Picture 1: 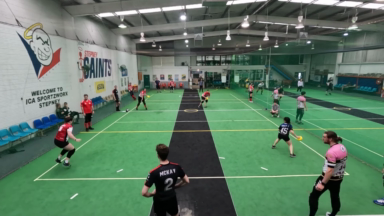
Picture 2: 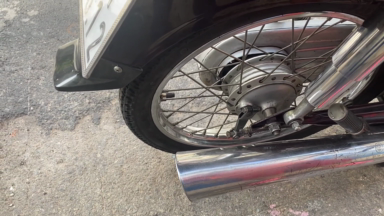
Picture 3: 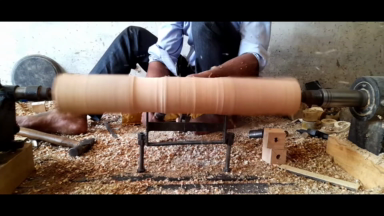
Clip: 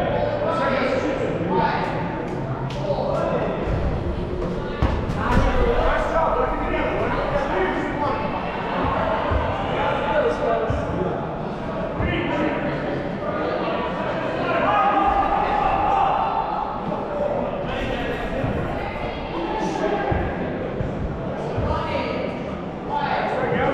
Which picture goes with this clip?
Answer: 1